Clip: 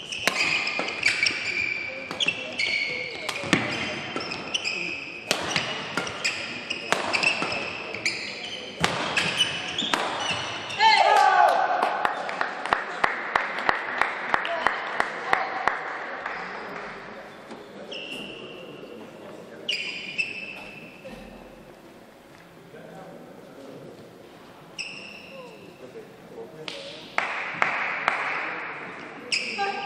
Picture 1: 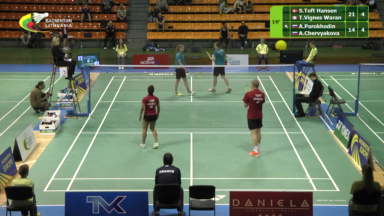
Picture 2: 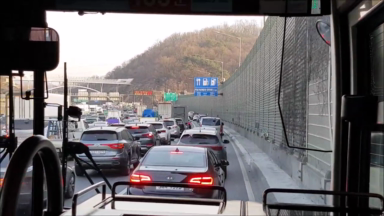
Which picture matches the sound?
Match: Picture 1